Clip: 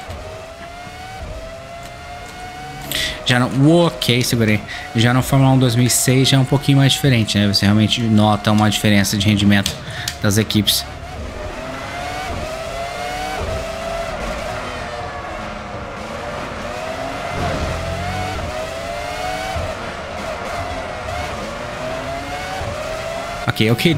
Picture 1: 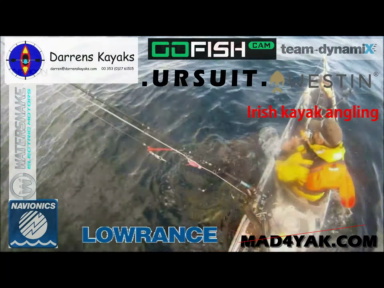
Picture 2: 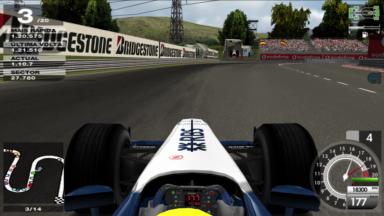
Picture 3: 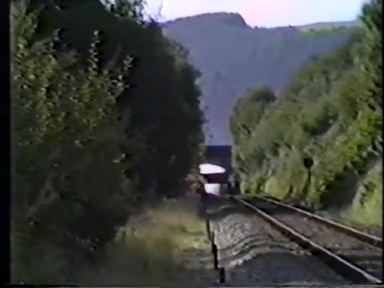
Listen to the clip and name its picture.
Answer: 2